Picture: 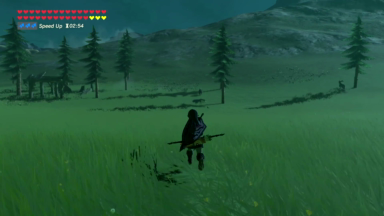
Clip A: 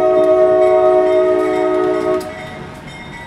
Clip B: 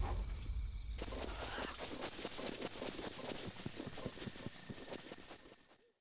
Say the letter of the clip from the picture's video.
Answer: B